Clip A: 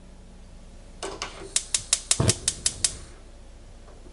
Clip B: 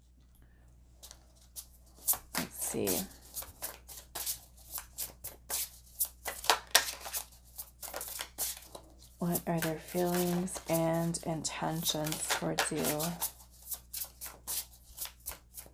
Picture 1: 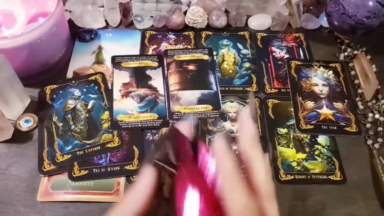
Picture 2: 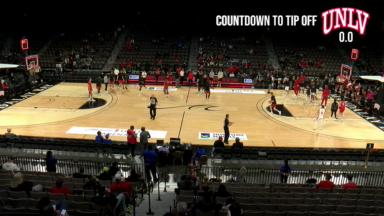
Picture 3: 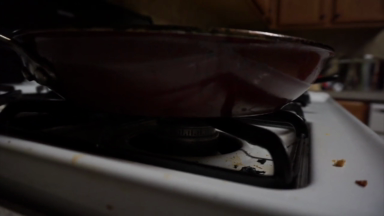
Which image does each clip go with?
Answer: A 3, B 1